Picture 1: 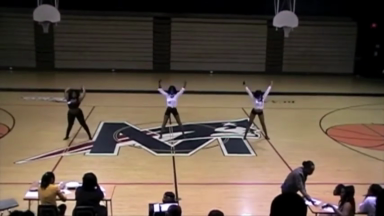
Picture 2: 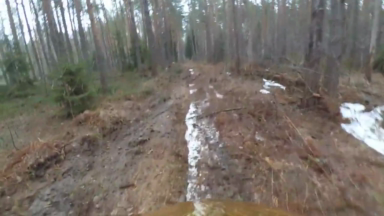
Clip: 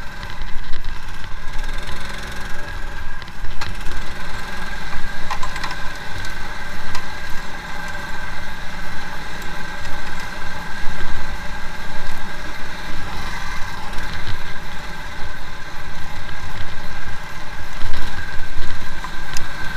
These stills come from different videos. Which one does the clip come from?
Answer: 2